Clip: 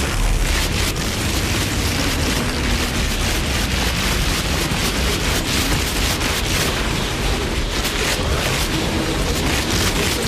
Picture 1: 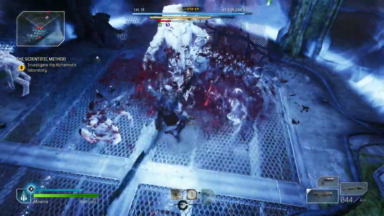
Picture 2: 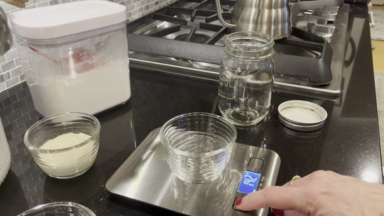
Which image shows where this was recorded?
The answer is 1